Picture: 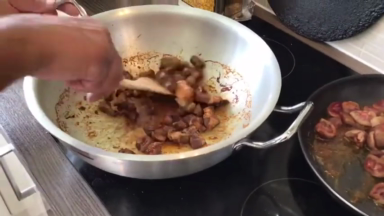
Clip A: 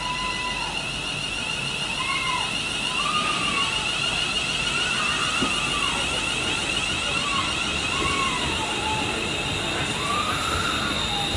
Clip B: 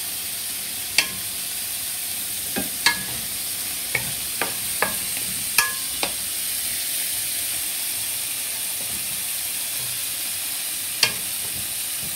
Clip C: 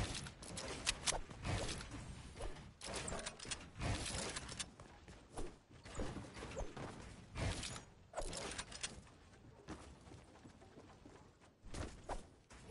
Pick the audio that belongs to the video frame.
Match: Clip B